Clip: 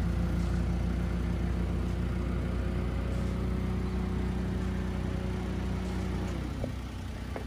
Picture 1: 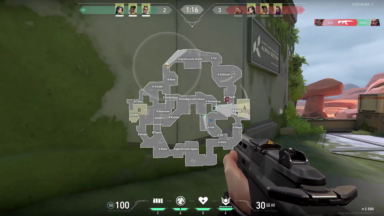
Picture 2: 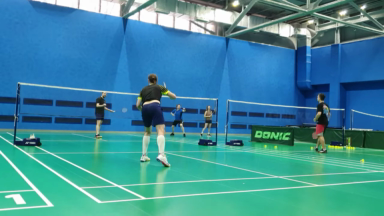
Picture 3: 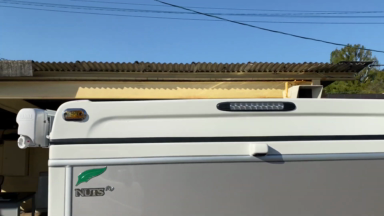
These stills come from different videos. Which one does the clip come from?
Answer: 3